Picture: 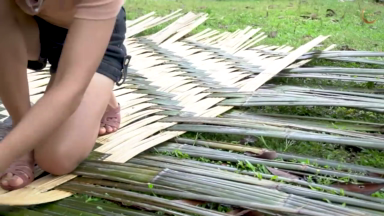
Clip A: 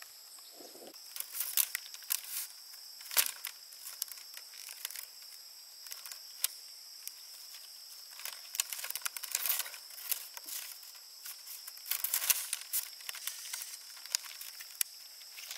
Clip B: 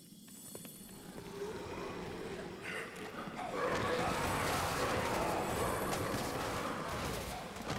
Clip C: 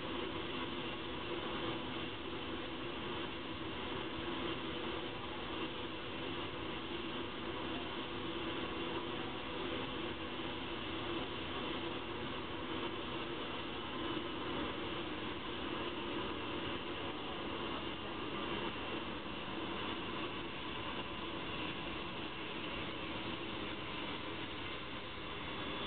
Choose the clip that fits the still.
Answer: A